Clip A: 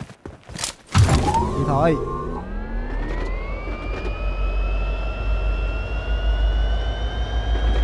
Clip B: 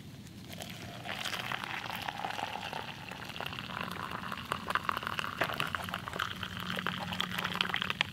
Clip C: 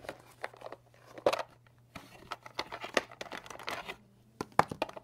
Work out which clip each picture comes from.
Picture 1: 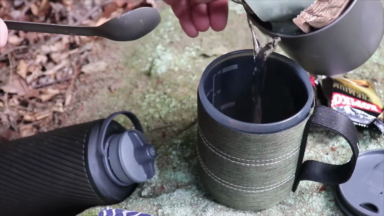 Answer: B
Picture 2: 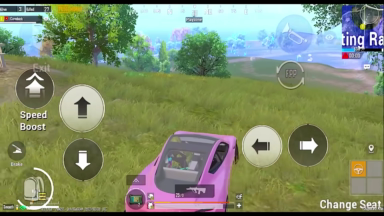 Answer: A